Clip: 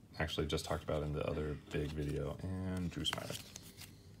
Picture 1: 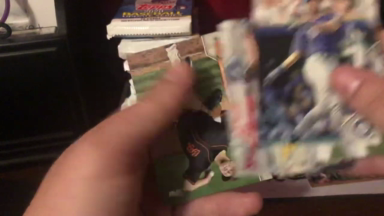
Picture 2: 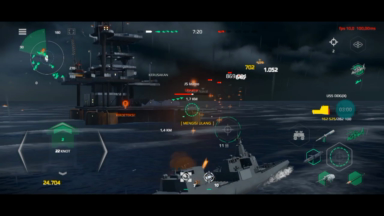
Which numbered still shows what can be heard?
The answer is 1